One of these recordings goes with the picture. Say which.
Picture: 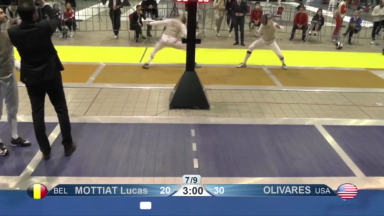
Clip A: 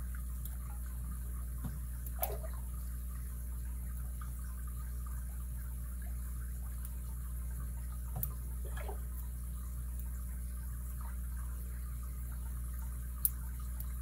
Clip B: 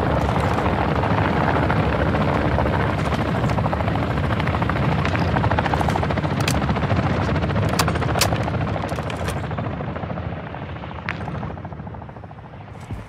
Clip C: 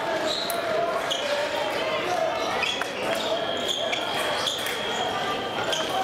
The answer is C